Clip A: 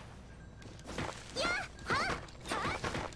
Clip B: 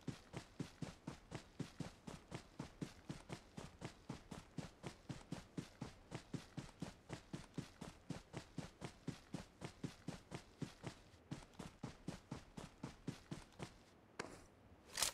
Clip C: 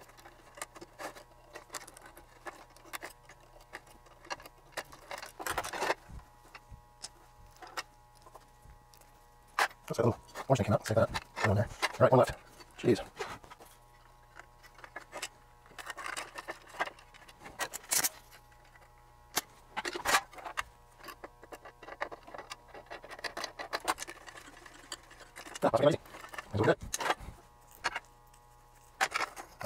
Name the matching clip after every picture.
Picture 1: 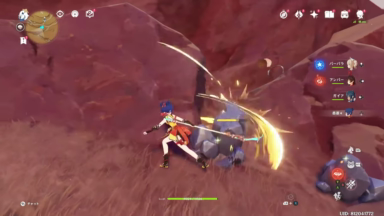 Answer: A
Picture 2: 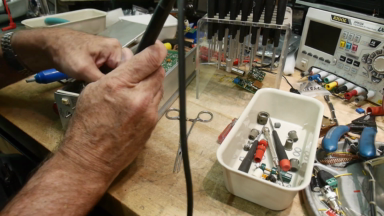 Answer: C